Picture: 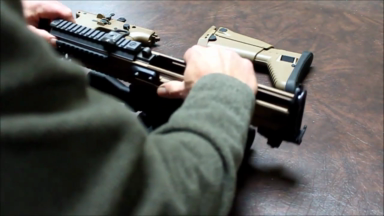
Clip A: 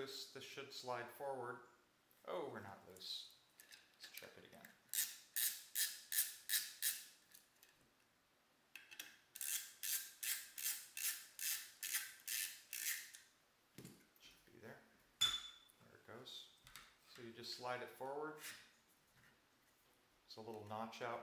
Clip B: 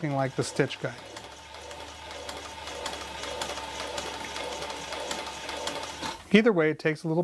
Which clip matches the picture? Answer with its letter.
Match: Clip A